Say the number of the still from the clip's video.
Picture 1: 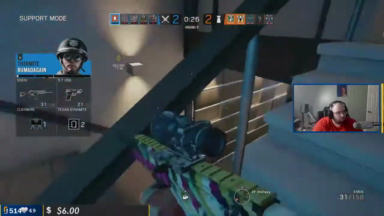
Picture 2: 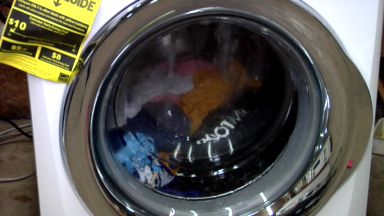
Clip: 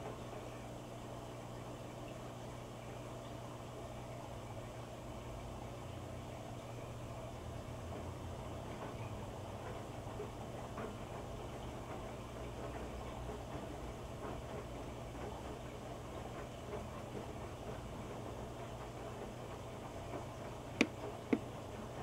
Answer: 2